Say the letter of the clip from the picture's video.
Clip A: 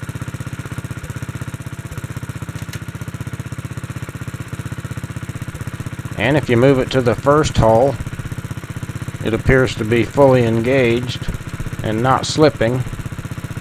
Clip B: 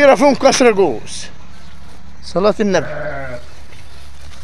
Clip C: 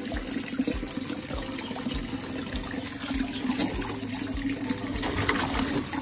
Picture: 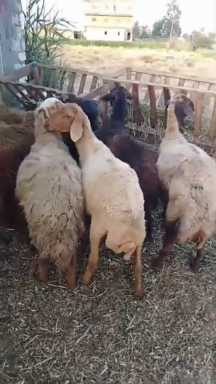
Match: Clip B